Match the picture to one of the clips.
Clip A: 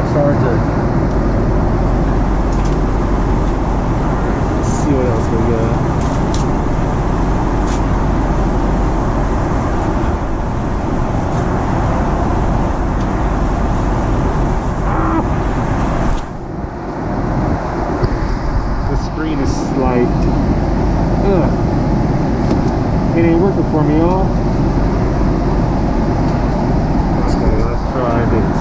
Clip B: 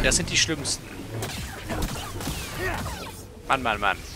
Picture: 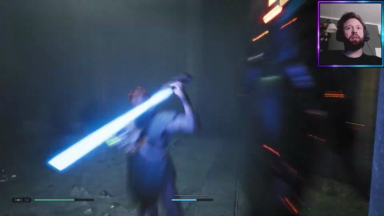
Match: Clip B